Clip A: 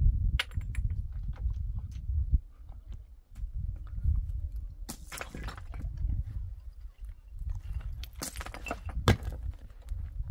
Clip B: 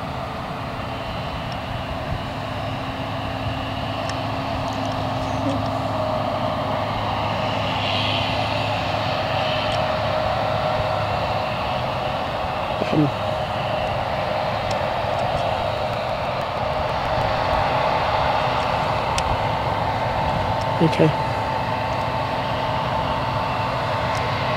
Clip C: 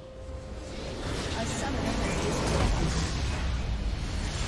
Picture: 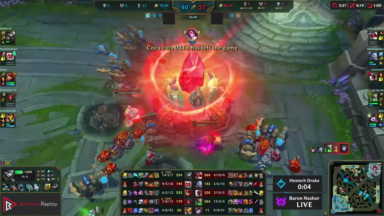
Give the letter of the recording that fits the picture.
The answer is C